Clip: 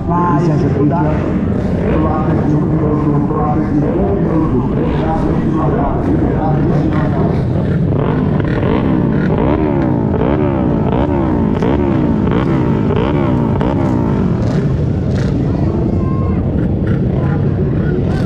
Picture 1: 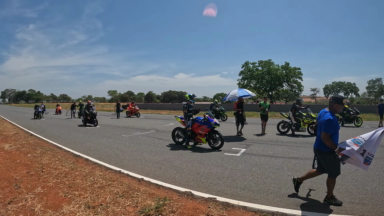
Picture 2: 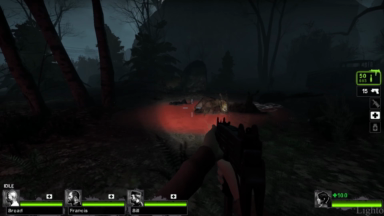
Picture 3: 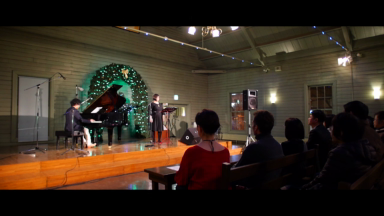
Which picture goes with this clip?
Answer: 1